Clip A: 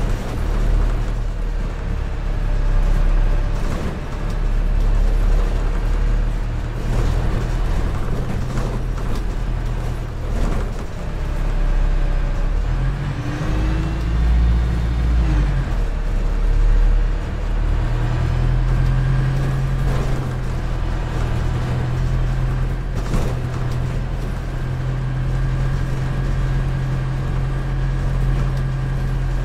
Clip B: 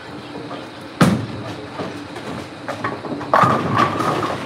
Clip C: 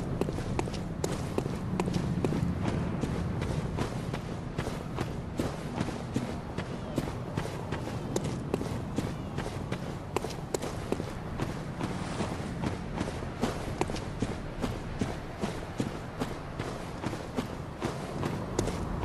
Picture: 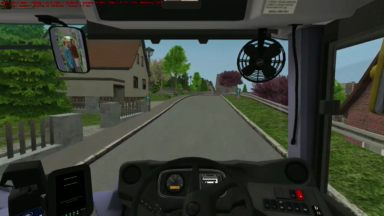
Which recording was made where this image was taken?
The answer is A